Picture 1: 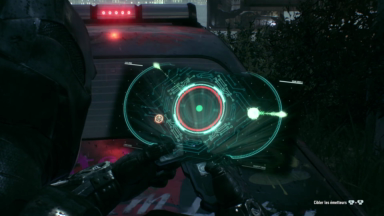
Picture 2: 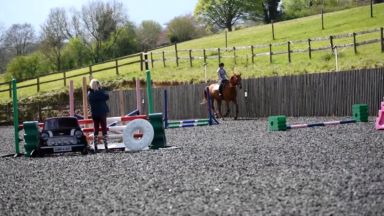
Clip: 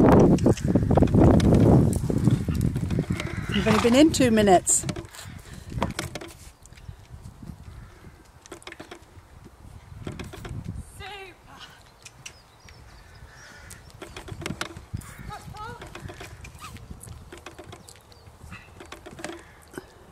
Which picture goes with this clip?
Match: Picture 2